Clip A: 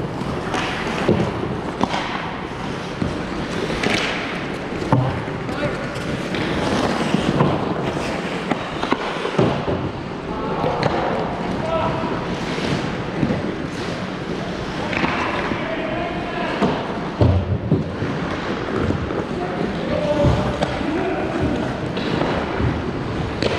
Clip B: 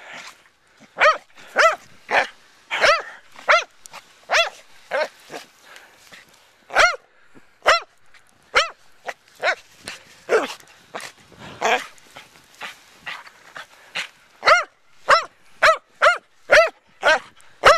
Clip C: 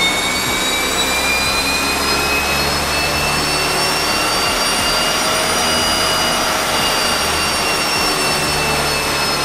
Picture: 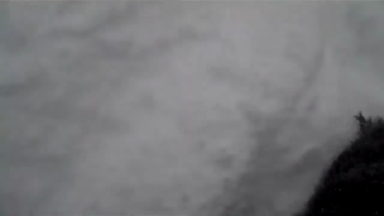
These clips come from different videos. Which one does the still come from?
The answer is B